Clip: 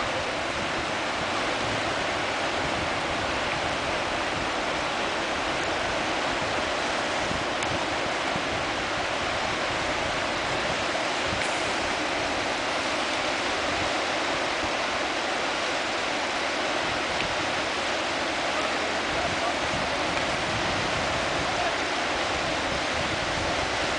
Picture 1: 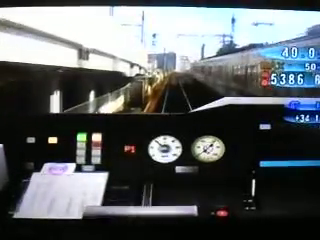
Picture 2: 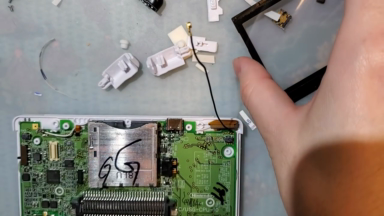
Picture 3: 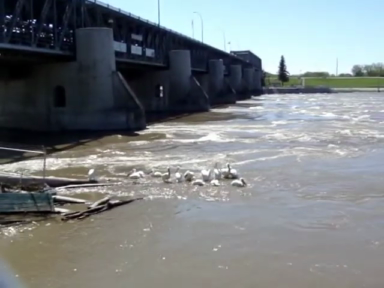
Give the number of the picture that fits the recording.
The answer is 3